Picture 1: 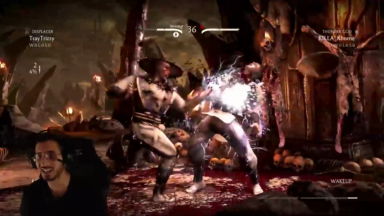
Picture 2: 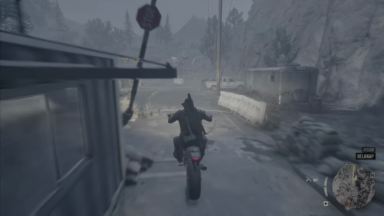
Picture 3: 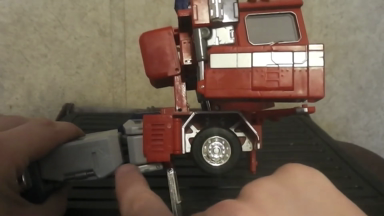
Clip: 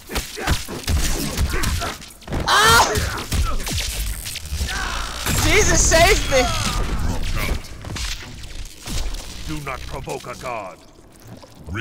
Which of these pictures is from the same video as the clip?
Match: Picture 1